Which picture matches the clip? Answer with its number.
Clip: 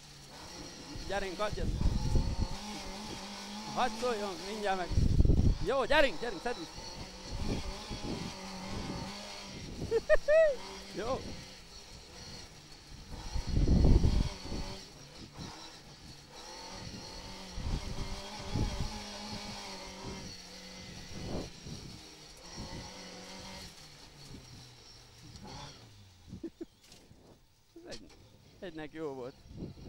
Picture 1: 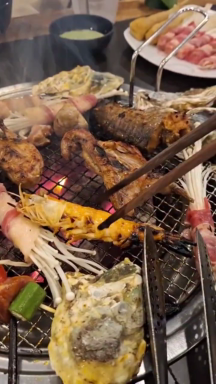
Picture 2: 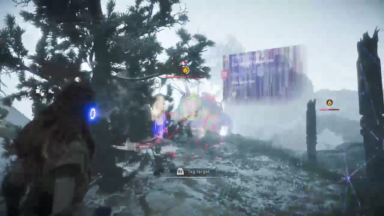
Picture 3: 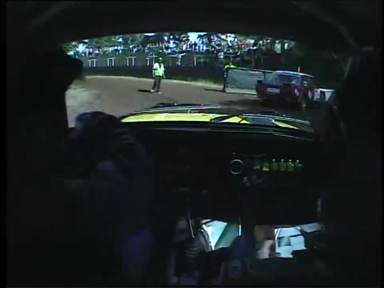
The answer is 3